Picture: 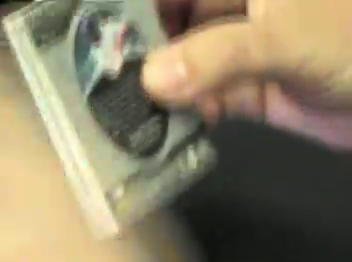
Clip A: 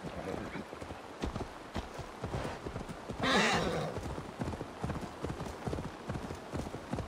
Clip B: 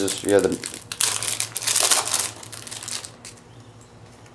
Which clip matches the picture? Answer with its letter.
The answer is B